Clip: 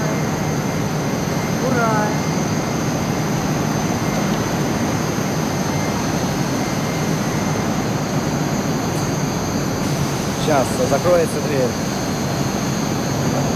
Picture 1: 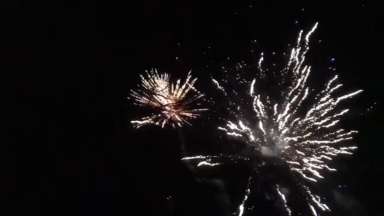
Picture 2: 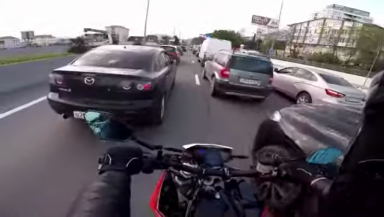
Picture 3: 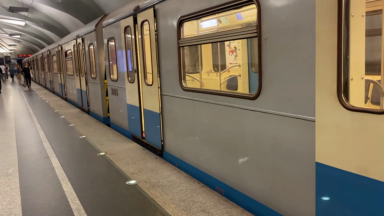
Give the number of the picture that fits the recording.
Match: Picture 3